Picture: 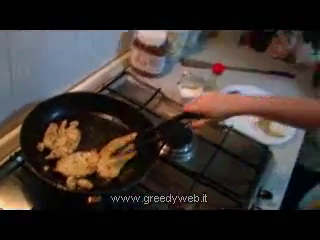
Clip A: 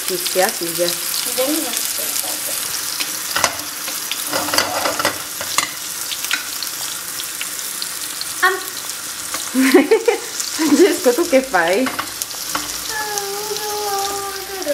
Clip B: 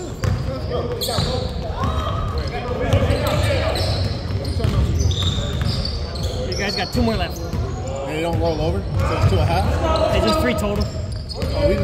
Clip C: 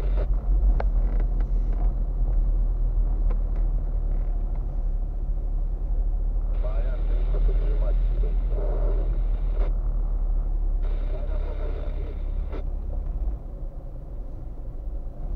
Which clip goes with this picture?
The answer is A